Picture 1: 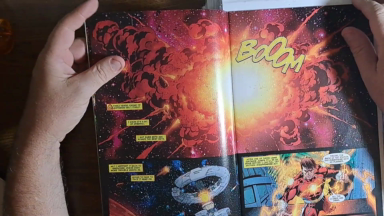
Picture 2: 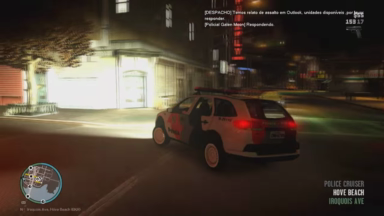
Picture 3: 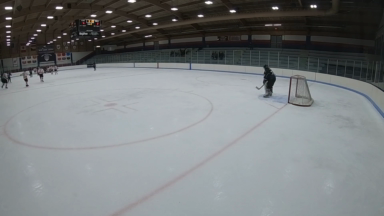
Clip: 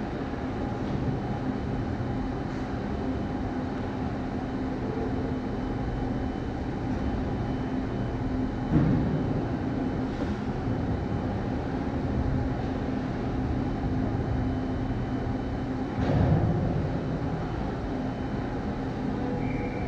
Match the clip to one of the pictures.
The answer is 3